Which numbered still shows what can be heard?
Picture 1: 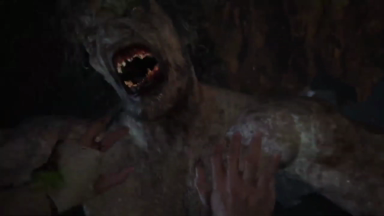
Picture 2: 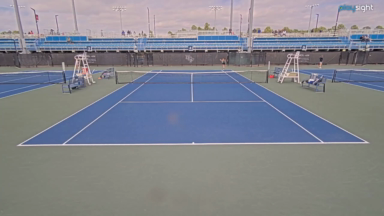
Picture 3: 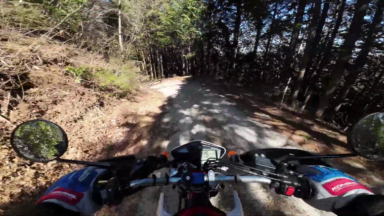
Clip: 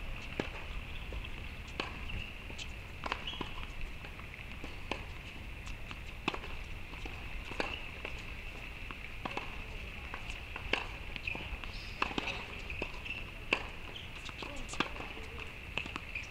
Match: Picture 2